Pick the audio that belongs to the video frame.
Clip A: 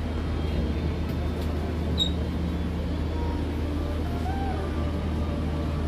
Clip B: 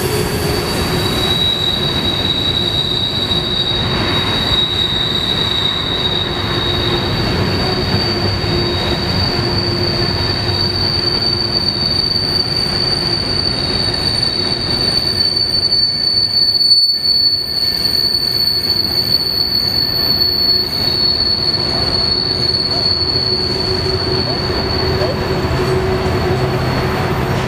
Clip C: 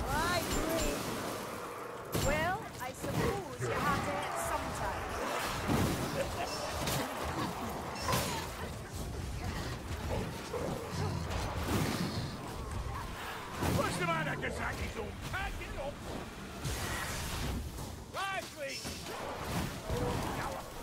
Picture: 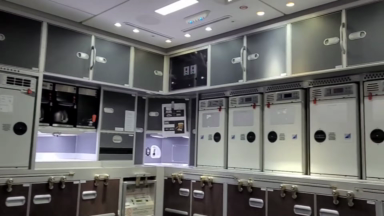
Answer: A